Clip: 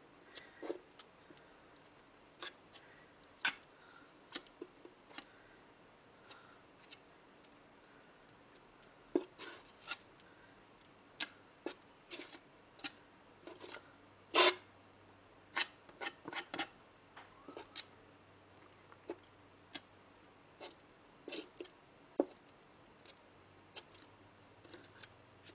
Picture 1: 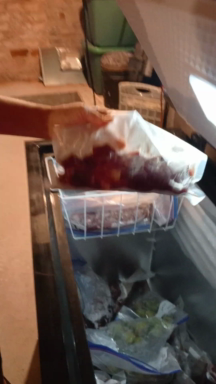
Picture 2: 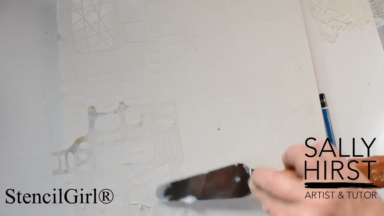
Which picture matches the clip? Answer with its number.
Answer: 2